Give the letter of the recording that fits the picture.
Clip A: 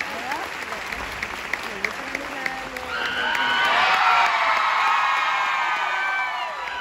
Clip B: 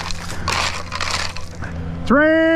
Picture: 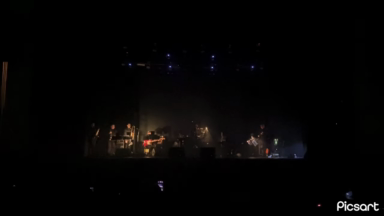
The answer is A